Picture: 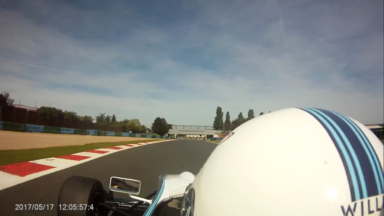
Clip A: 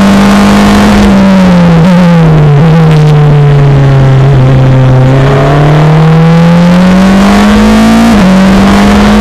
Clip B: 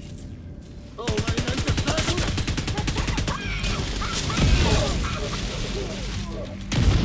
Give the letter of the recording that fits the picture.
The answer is A